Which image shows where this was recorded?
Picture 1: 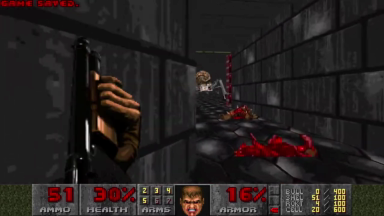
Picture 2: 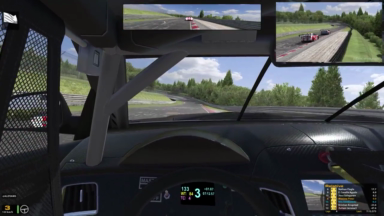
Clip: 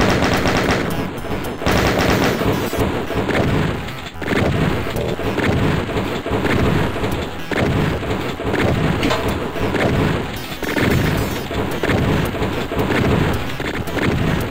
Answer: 1